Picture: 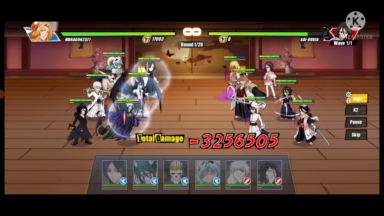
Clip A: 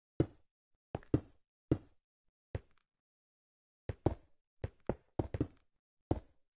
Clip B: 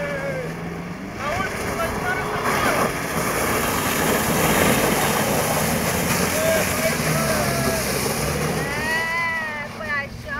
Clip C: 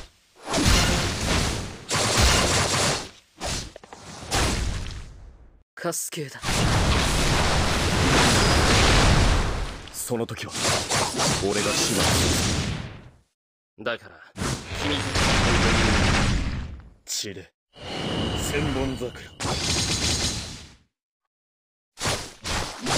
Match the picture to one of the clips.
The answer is C